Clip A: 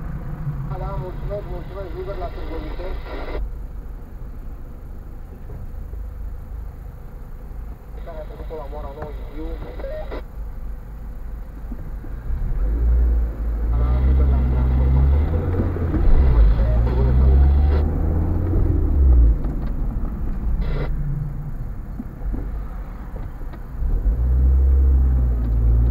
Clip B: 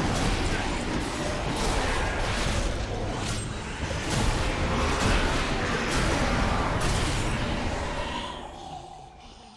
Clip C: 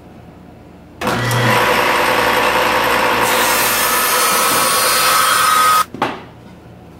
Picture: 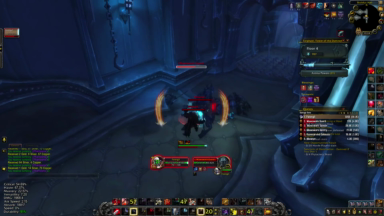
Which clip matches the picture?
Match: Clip B